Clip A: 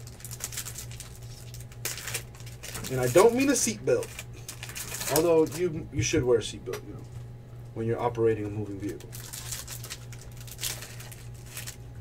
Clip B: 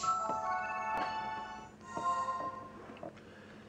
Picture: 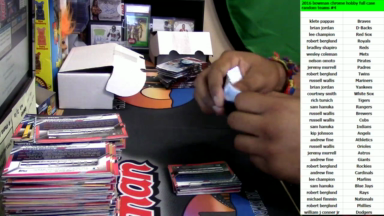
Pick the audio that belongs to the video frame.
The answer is A